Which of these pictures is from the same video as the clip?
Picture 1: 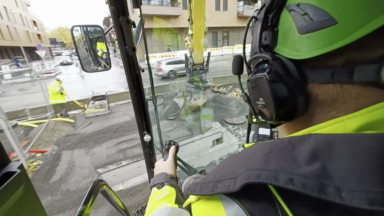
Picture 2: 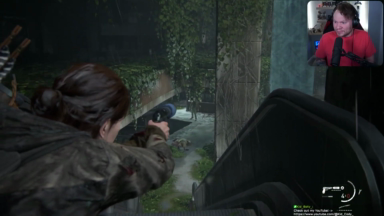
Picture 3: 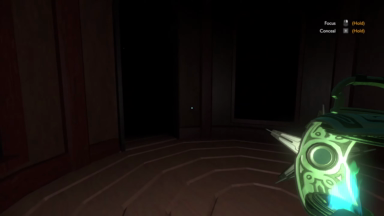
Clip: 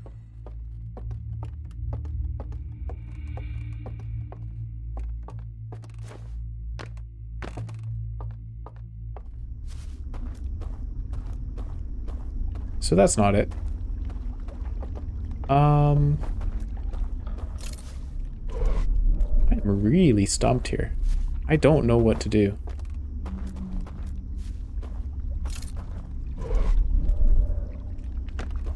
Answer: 3